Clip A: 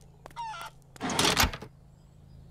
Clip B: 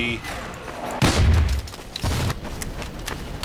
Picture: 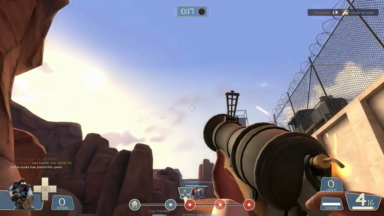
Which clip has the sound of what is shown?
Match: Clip B